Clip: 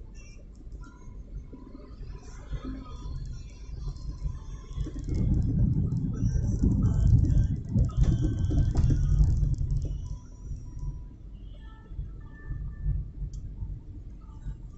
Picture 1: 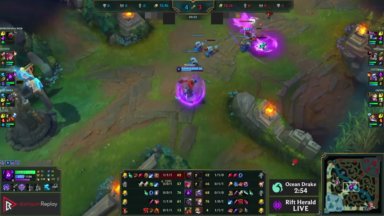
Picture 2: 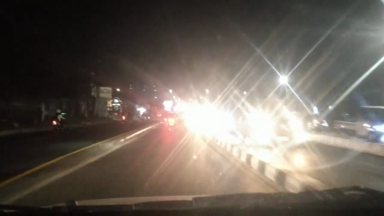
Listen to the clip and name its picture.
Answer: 2